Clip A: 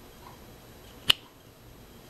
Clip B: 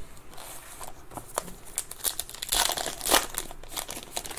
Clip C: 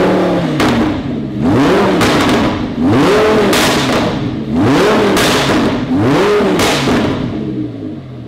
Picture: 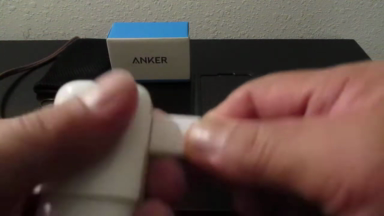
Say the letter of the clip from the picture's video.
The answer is A